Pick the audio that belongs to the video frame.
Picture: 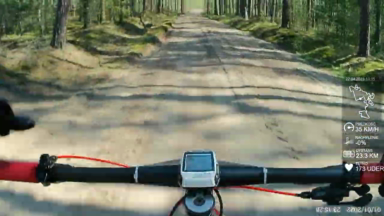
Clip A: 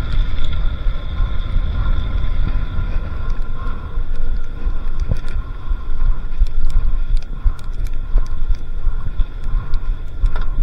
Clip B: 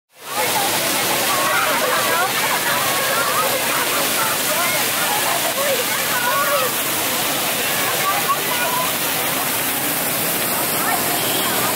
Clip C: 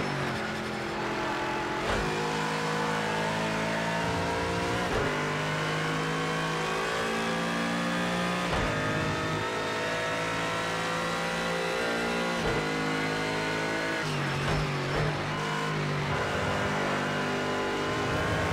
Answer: A